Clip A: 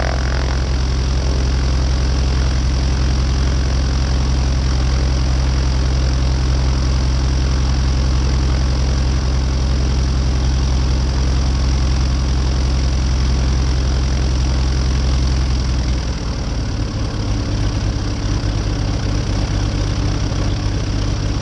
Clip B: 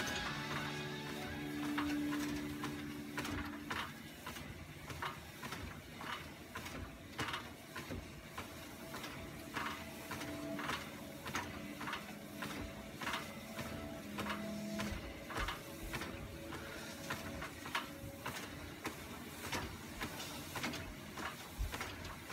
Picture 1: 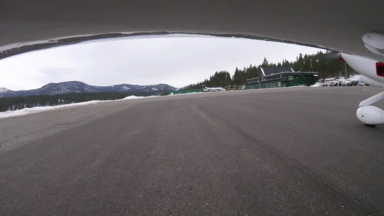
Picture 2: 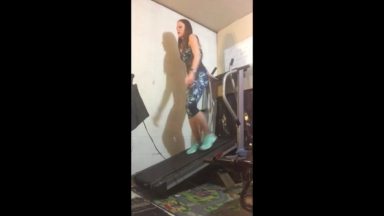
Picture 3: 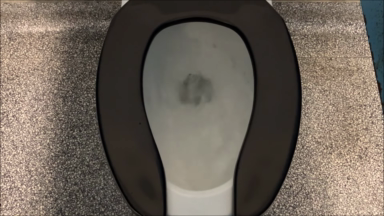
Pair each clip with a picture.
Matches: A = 1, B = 2